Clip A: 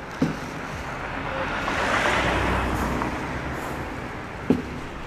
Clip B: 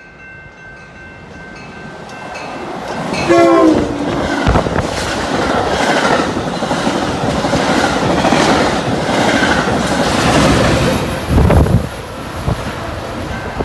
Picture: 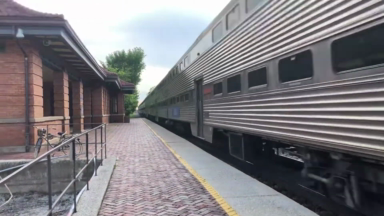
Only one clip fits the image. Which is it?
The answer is B